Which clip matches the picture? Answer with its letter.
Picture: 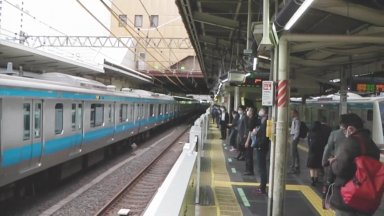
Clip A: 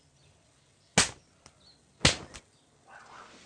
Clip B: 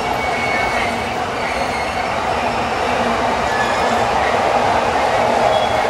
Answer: B